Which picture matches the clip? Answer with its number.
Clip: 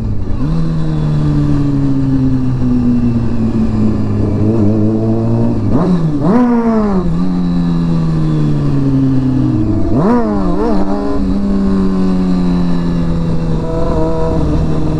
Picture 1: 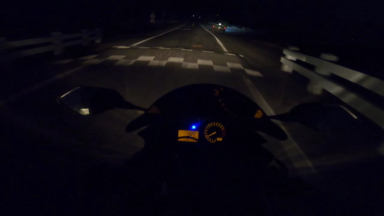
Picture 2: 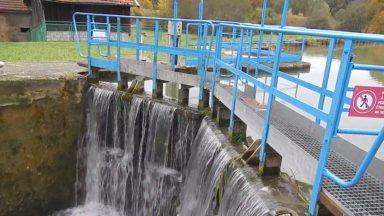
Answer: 1